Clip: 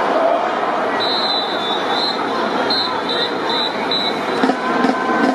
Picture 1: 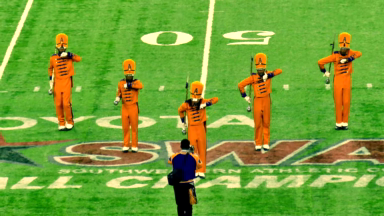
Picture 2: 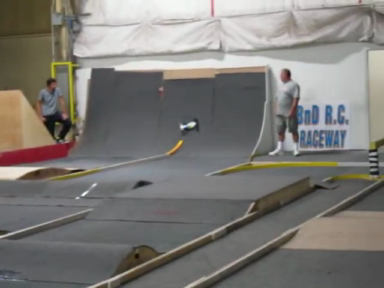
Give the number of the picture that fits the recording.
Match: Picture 1